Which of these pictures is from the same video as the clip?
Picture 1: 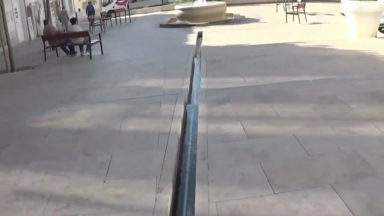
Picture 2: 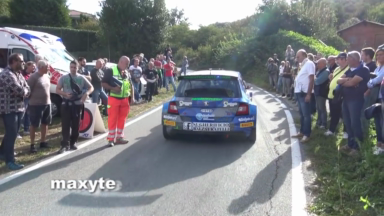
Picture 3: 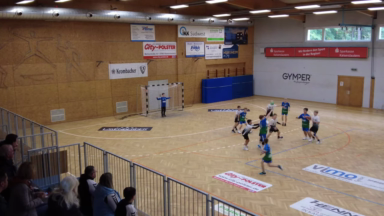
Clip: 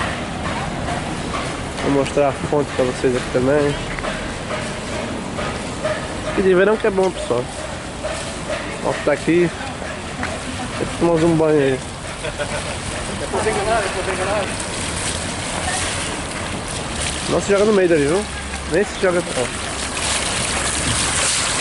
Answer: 1